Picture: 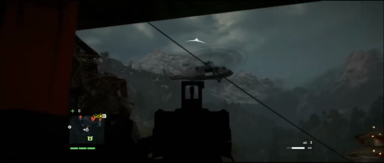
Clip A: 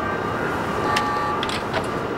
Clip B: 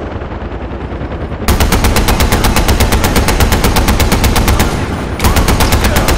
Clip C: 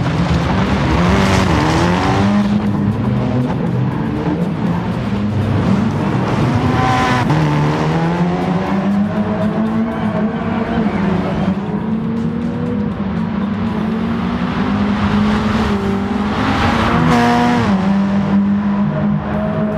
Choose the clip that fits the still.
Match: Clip B